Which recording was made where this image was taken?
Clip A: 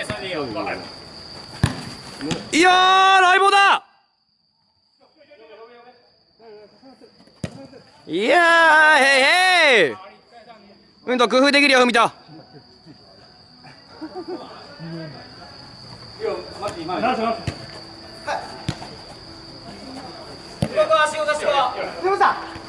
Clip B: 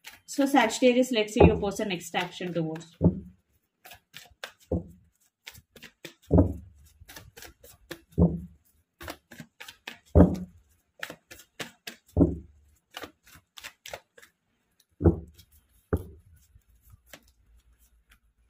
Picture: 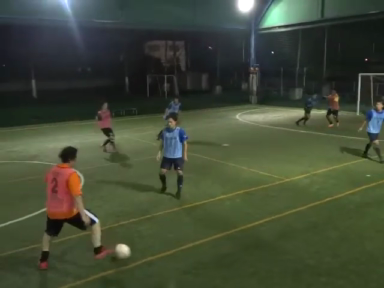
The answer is A